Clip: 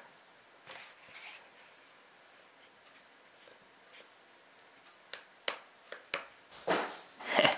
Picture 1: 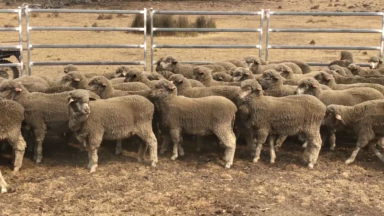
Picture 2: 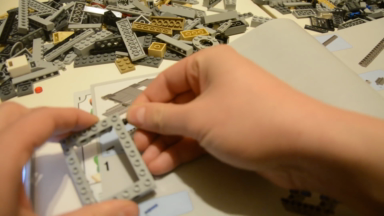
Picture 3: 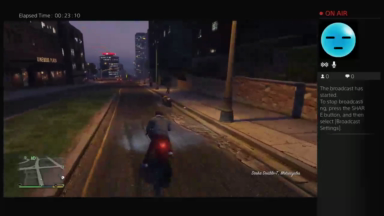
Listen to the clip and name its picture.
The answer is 2